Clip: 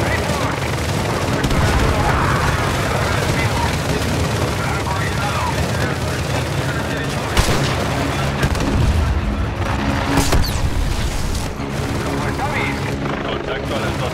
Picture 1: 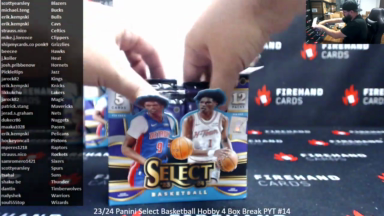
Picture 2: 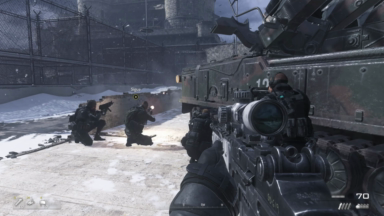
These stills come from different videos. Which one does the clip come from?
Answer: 2